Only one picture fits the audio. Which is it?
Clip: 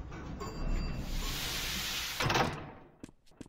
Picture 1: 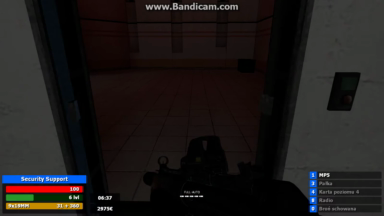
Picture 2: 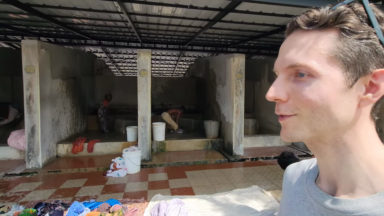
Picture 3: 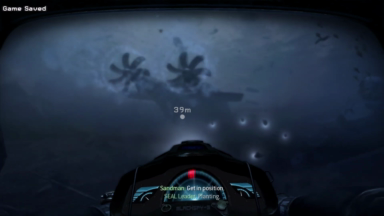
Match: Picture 1